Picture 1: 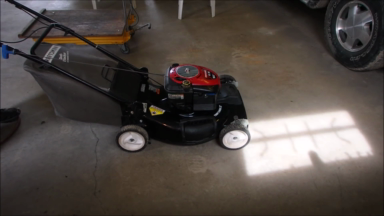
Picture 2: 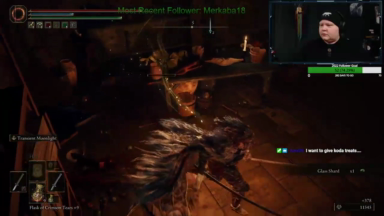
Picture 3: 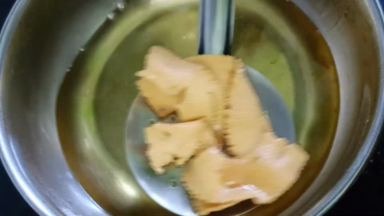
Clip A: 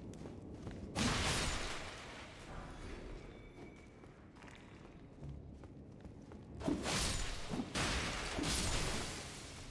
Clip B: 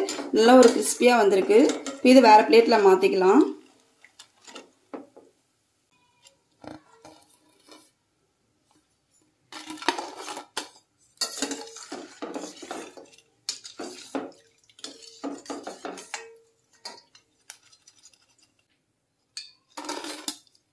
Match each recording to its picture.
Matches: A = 2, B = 3